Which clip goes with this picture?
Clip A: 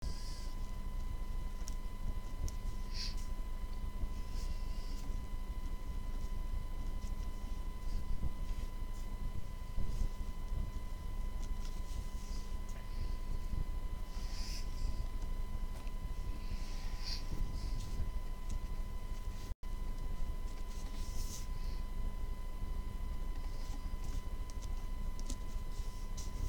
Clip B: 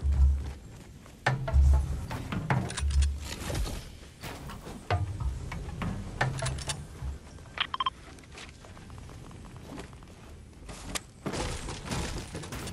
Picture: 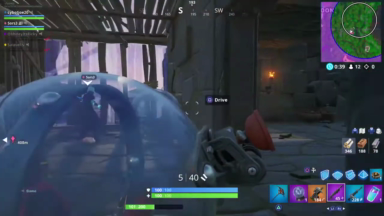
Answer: B